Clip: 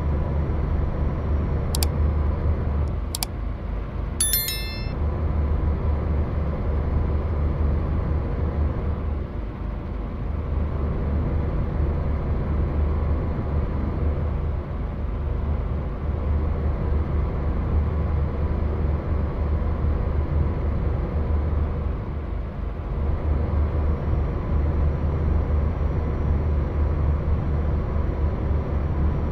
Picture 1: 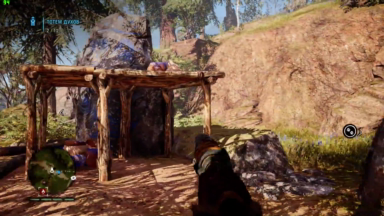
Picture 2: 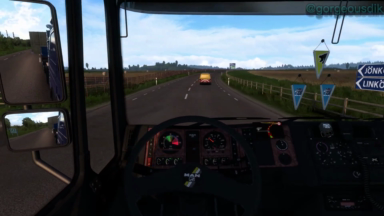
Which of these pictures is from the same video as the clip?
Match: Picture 2